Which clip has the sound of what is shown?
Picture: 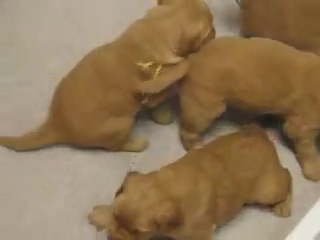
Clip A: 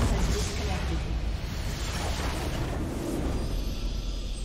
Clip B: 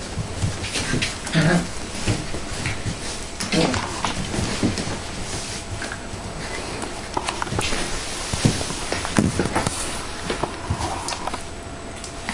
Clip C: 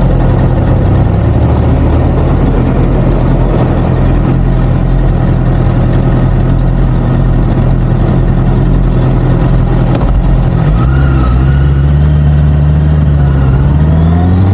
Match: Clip B